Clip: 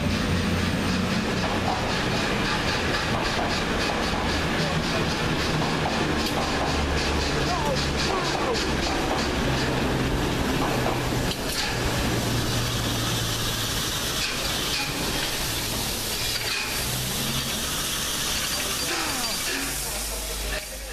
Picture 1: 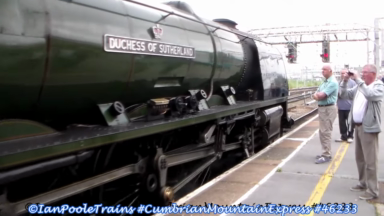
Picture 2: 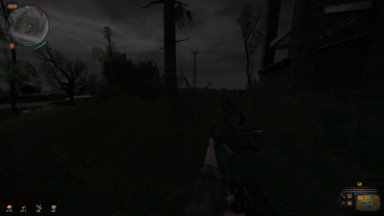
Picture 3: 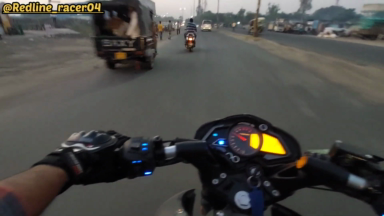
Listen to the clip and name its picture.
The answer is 1